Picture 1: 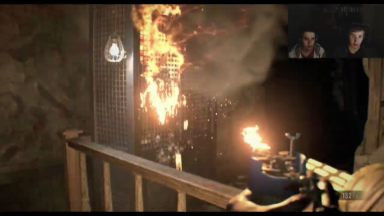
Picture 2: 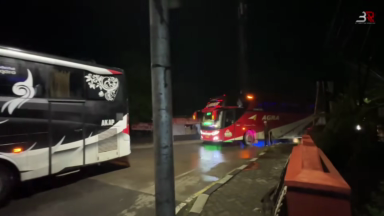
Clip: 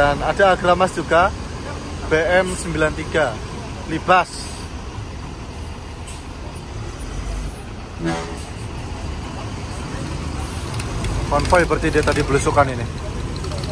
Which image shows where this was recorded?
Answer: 2